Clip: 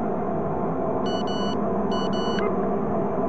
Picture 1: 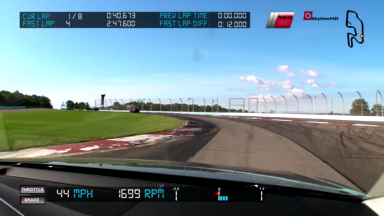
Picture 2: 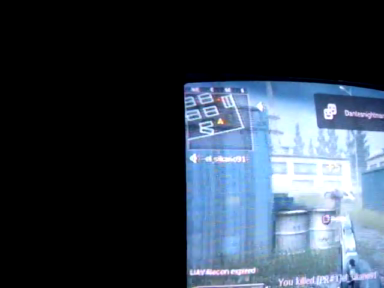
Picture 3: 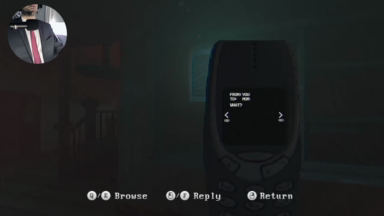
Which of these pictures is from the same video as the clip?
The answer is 3